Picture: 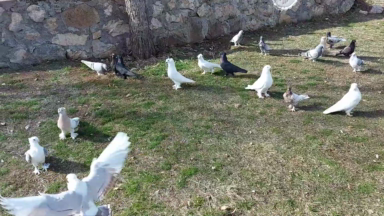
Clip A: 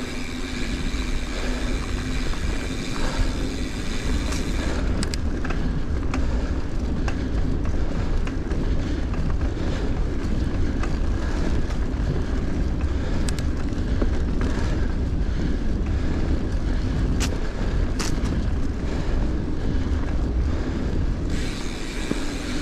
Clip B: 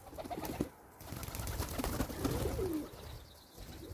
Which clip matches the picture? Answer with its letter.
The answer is B